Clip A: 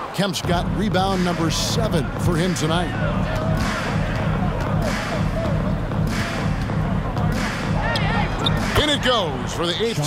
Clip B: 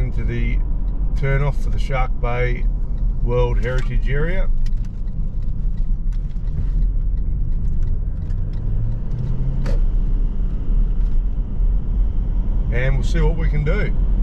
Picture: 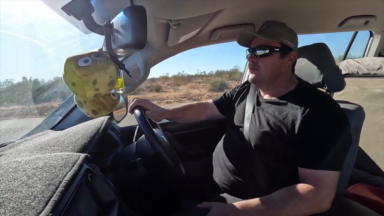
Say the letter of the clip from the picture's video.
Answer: B